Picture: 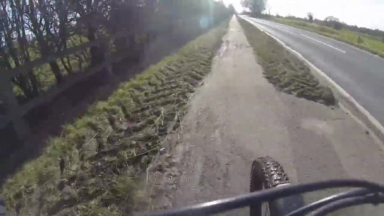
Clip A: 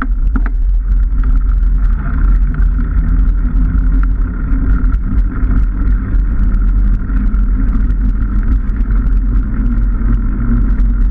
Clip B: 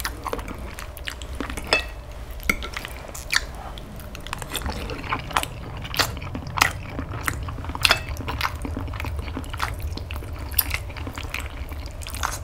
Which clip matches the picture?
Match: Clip A